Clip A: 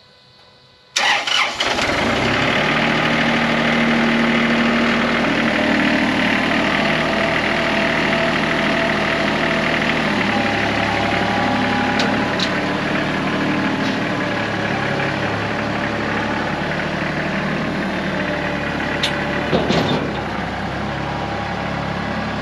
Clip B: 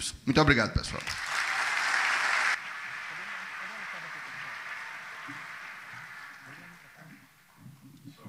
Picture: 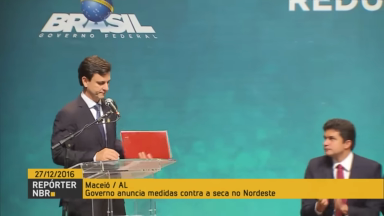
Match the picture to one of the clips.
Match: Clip B